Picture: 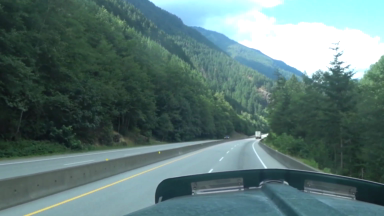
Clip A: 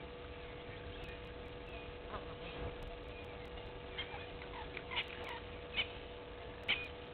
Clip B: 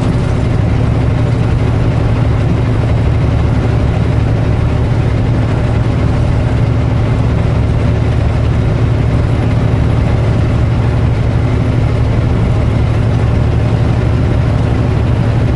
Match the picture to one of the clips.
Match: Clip B